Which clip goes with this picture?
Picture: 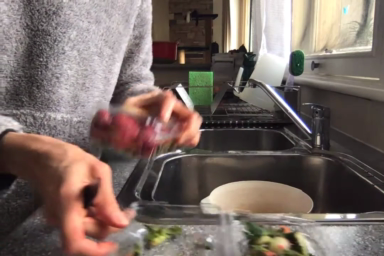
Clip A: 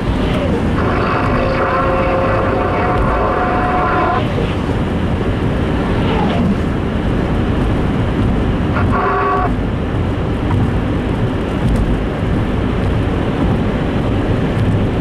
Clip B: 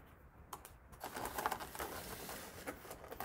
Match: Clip B